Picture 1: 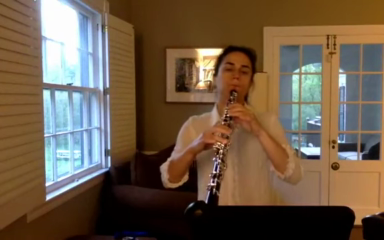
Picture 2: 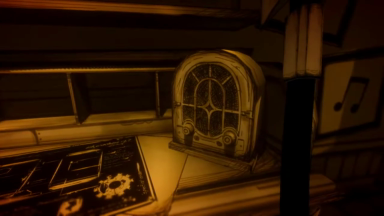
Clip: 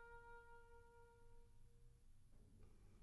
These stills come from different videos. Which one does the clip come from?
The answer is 1